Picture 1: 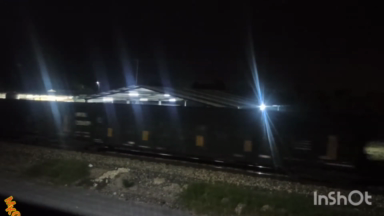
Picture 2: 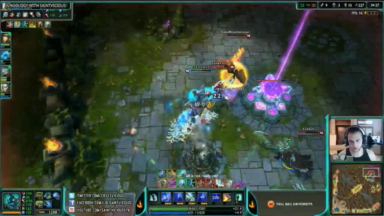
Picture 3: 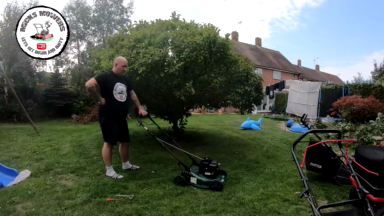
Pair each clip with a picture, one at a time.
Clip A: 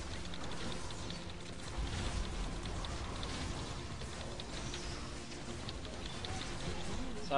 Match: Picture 2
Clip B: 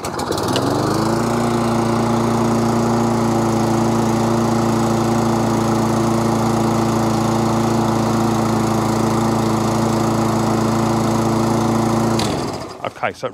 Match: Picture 3